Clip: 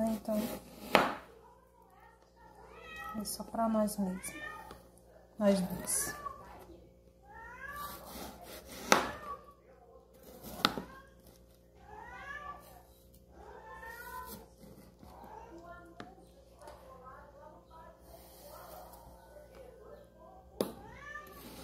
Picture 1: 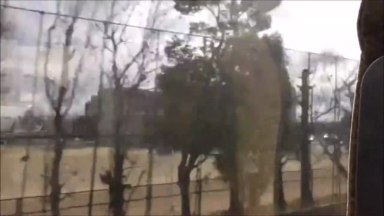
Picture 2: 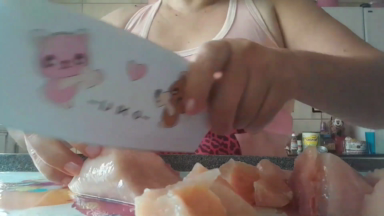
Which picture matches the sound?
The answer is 2